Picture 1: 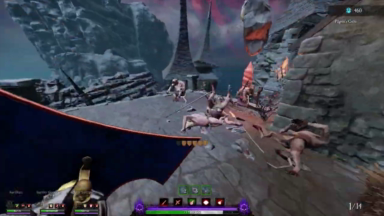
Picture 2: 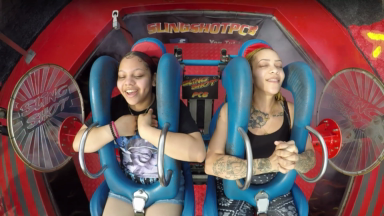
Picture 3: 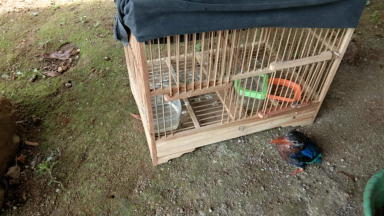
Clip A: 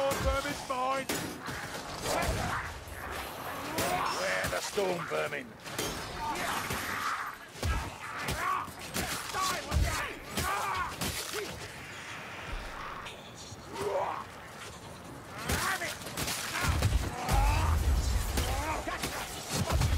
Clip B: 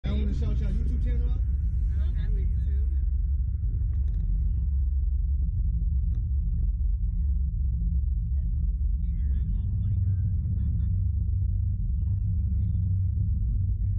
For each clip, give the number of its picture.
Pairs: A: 1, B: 2